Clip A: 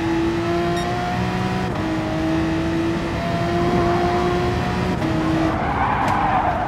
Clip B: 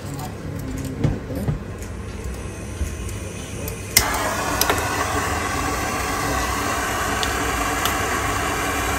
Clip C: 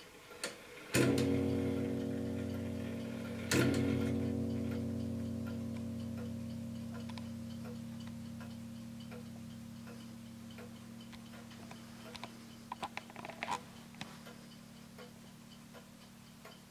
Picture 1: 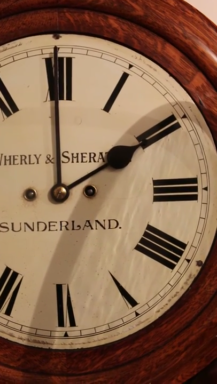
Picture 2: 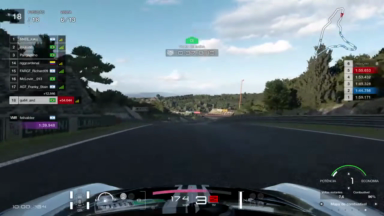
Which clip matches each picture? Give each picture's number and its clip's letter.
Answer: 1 C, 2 A